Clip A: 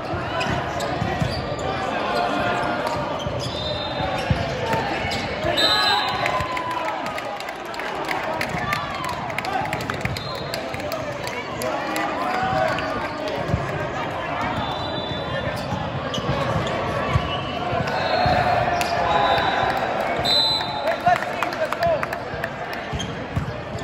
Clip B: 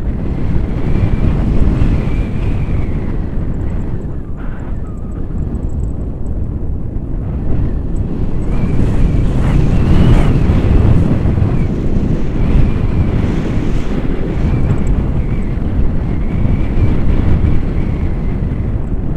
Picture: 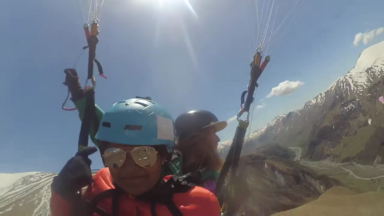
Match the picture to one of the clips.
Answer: B